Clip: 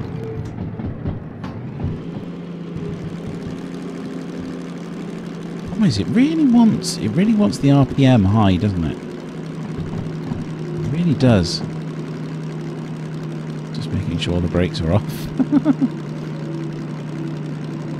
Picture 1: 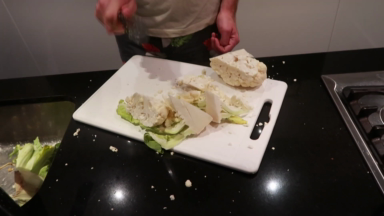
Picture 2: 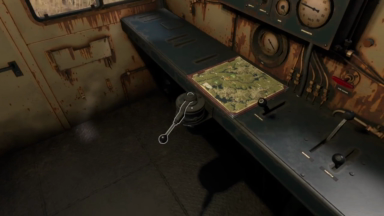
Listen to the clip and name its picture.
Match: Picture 2